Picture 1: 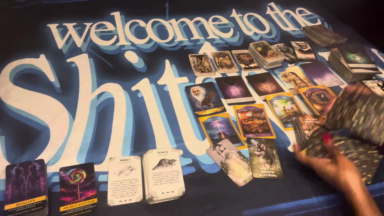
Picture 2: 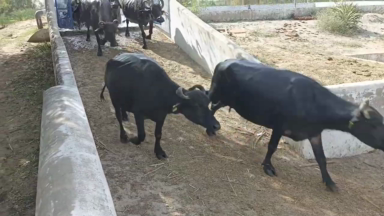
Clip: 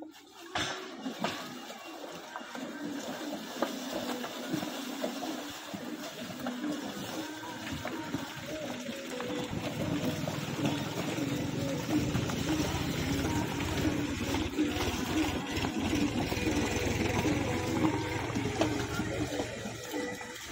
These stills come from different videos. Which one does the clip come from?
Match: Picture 2